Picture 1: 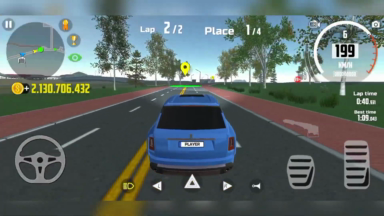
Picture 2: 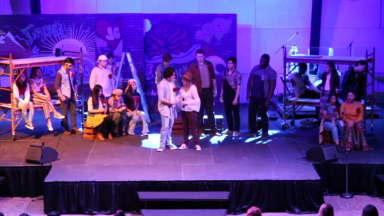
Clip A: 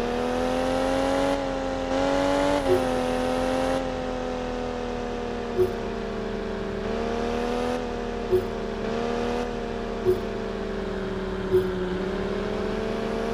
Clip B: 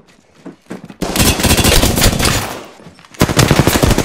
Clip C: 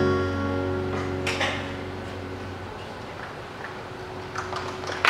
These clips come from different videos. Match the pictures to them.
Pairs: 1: A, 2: C